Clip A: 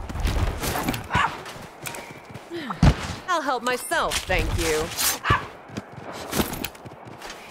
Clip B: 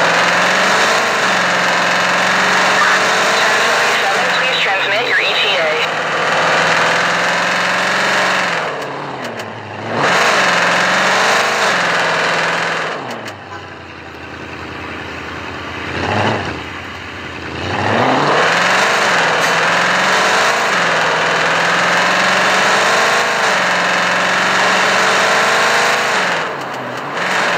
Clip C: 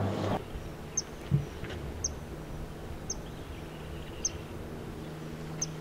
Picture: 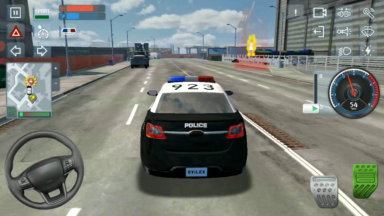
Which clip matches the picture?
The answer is B